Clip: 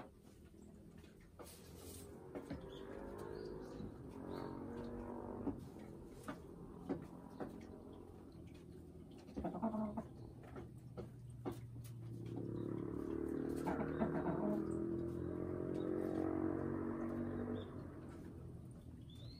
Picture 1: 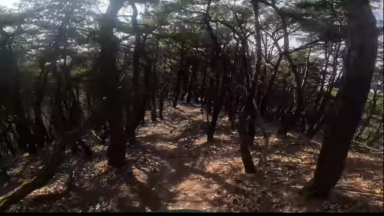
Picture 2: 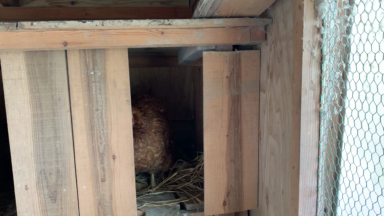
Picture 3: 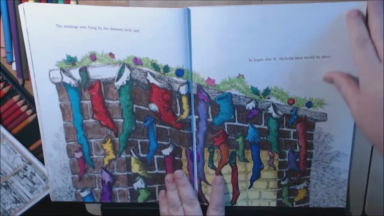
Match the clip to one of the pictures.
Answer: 2